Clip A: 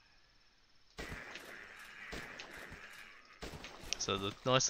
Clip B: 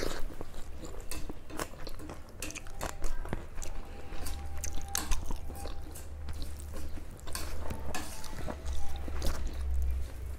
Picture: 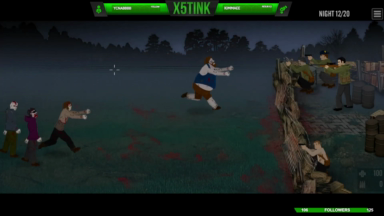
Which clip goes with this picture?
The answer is A